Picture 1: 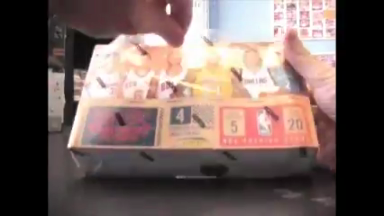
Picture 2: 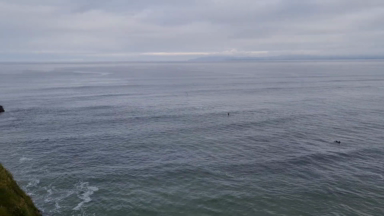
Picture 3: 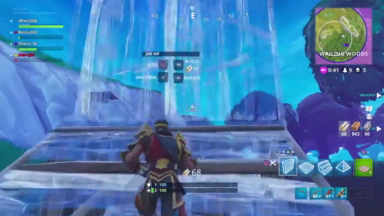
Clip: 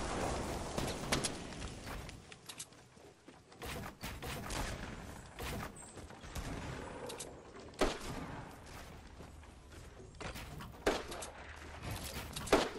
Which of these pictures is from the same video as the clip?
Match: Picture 3